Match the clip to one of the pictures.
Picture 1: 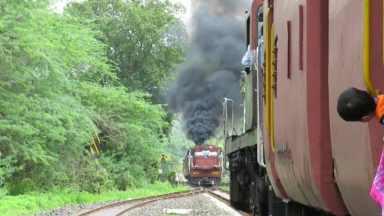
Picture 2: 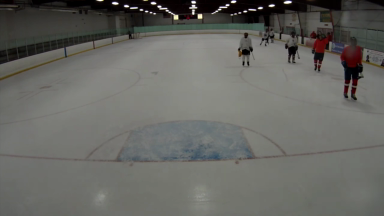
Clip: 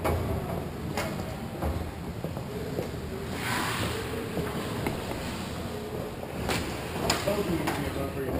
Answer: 2